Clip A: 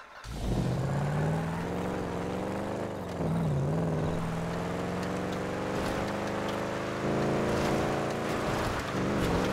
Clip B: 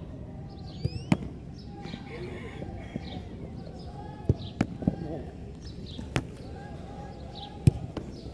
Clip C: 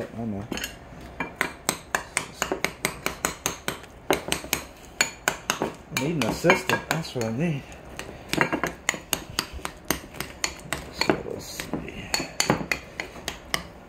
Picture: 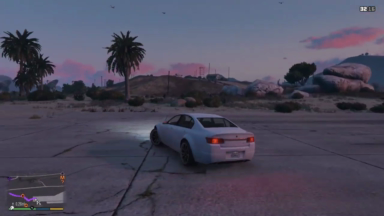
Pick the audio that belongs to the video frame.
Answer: A